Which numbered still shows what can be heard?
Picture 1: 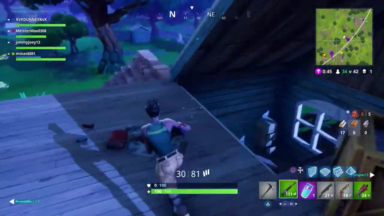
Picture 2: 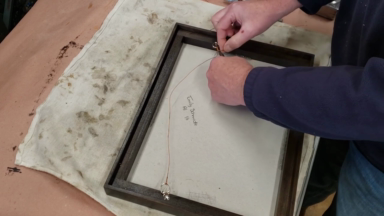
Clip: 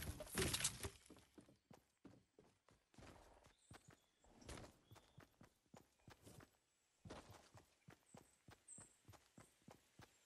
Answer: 1